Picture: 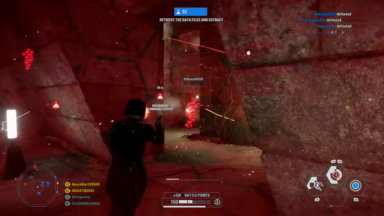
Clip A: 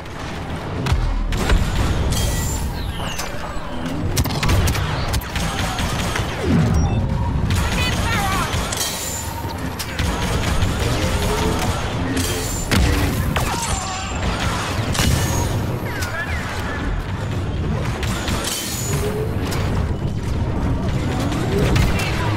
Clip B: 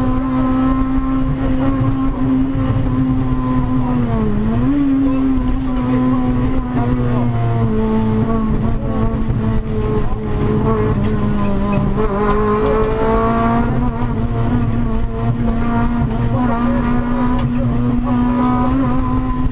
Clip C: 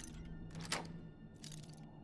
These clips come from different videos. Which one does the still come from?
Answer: A